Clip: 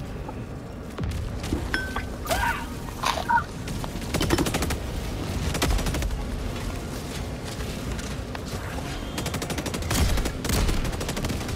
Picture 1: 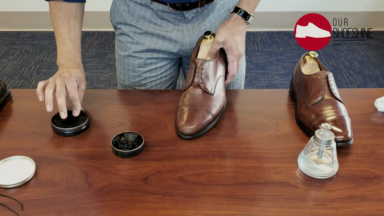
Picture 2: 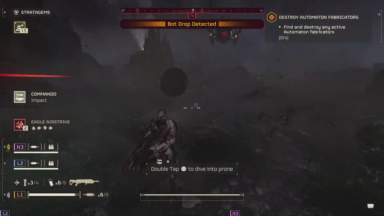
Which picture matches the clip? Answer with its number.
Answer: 2